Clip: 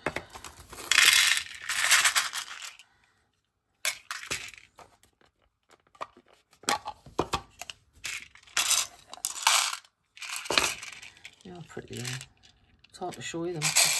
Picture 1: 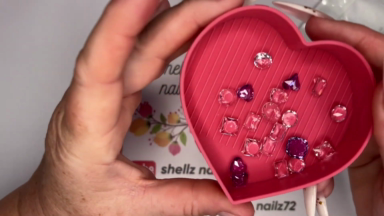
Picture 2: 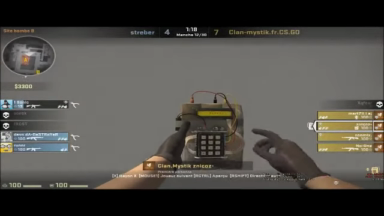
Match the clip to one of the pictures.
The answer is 1